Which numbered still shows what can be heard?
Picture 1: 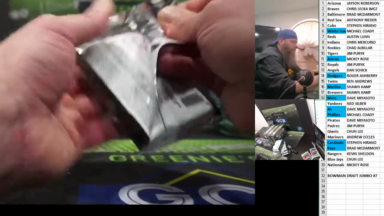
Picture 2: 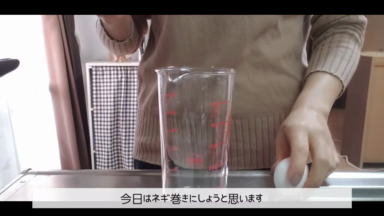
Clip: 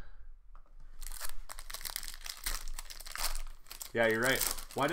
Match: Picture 1